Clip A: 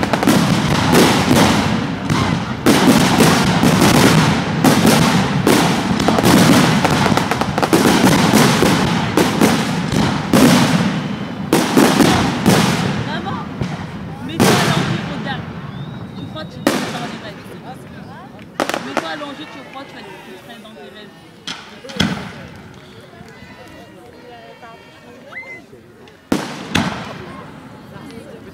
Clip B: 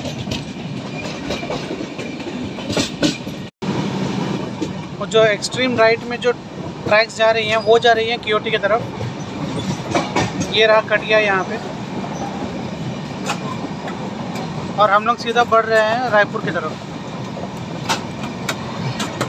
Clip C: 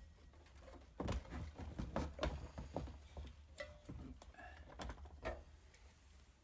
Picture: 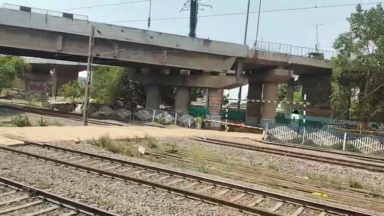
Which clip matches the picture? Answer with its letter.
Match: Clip B